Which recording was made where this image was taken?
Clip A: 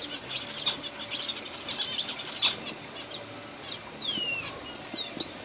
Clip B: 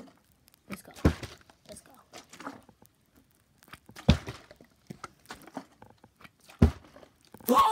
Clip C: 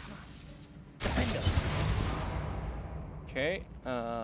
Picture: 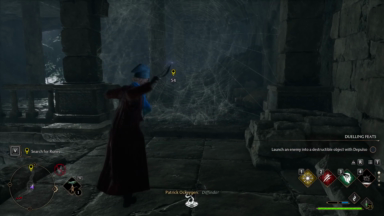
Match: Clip C